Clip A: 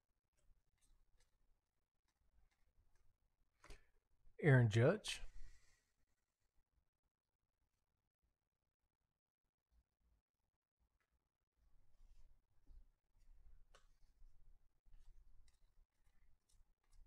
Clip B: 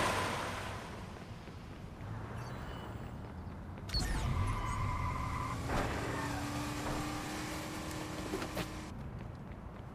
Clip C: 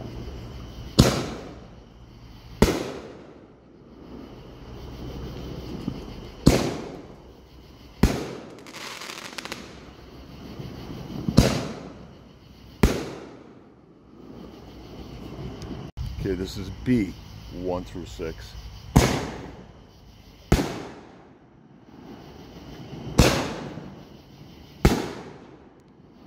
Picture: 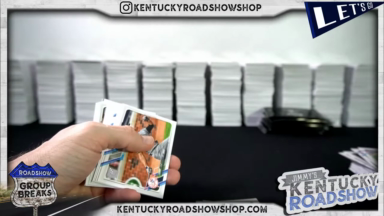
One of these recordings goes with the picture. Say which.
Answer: A